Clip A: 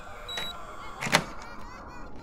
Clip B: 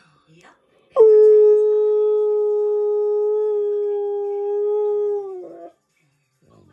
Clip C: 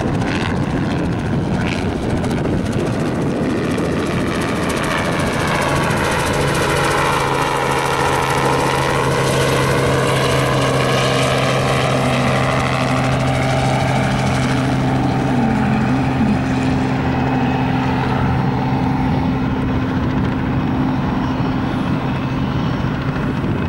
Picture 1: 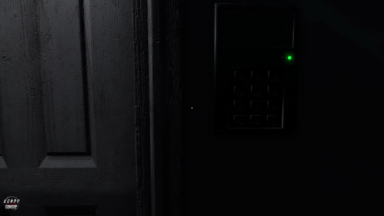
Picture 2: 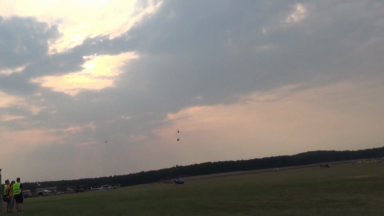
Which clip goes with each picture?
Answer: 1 A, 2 C